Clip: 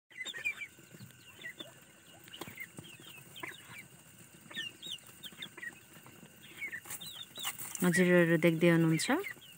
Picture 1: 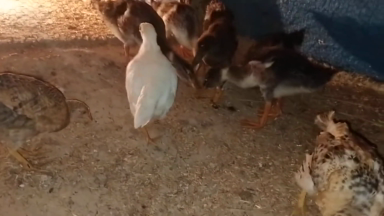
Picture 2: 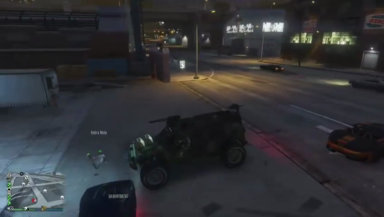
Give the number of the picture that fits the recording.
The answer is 1